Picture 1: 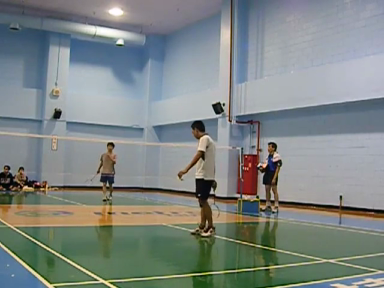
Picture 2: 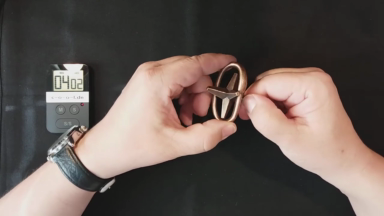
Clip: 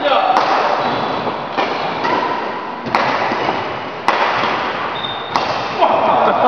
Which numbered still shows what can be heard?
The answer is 1